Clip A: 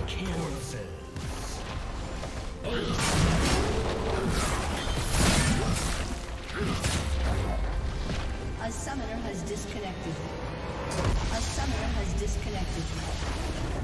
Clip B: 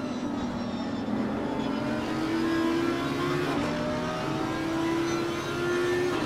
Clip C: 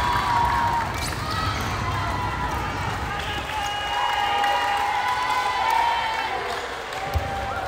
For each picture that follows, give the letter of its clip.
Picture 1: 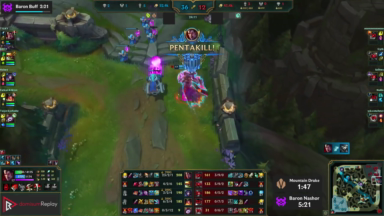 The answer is A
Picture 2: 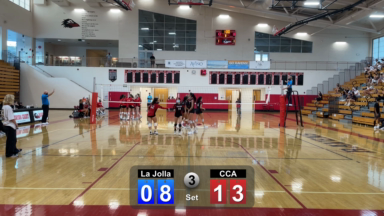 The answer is C